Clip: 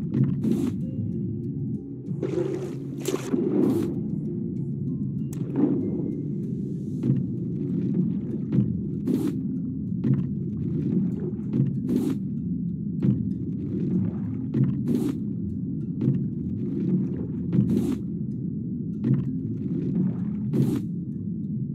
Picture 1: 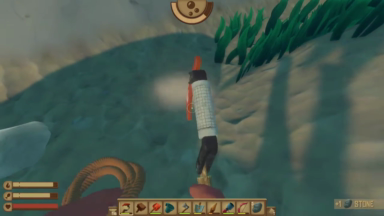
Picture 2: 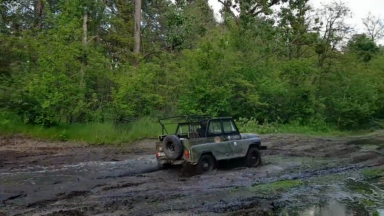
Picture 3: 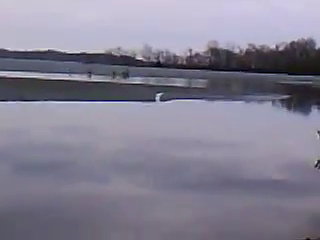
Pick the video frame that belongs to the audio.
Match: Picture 1